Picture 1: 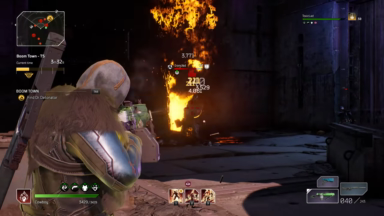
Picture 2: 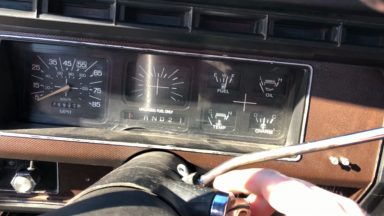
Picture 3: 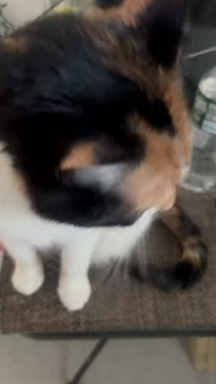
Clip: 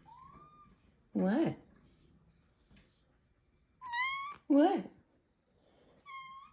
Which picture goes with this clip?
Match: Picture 3